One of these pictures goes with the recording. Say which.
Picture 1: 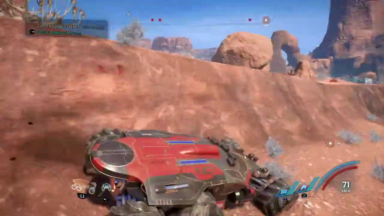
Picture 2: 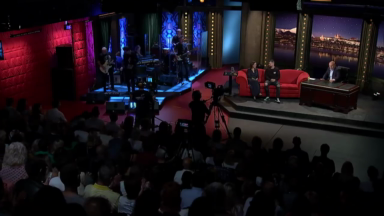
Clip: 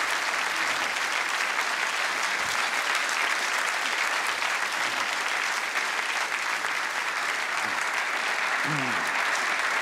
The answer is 2